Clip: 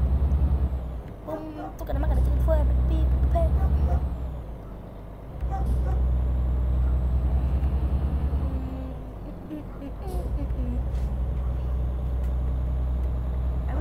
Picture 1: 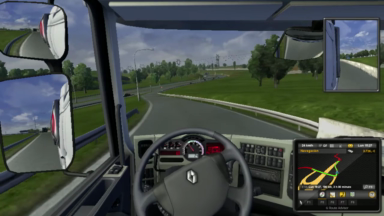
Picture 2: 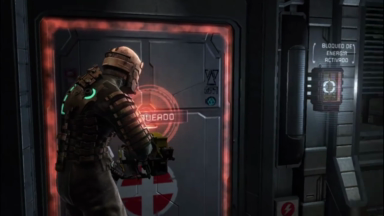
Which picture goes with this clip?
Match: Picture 1